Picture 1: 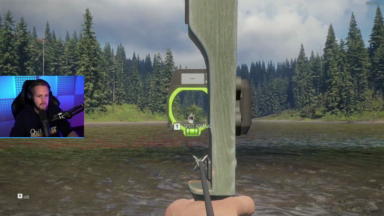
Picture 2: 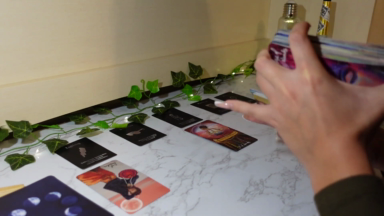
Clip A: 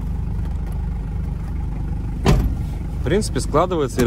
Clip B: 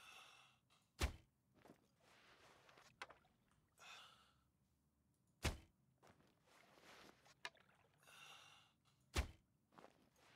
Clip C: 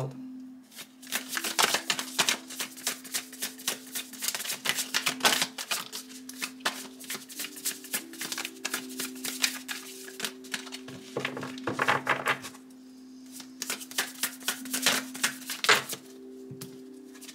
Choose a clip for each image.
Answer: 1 B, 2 C